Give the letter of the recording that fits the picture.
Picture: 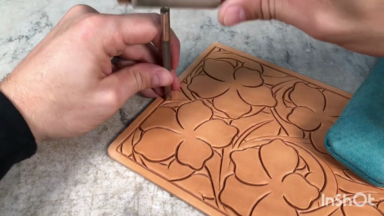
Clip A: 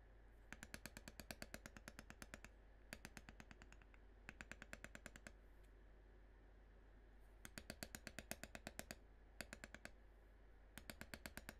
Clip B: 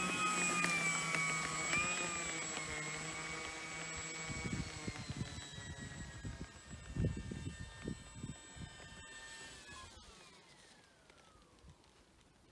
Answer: A